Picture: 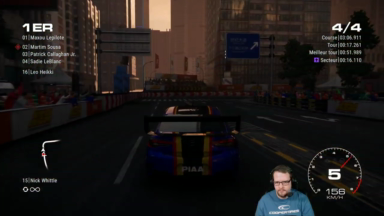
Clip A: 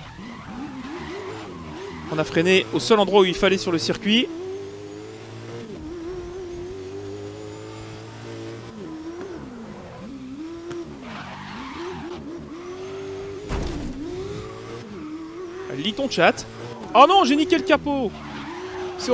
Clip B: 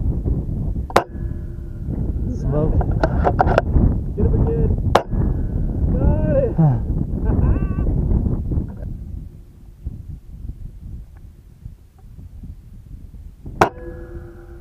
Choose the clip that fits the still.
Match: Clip A